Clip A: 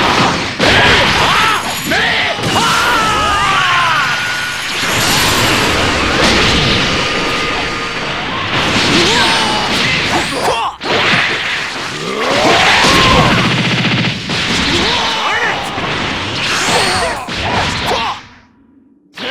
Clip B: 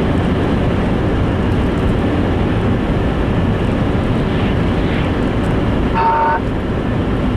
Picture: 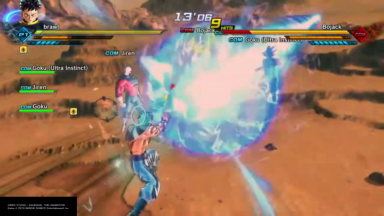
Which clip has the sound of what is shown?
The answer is A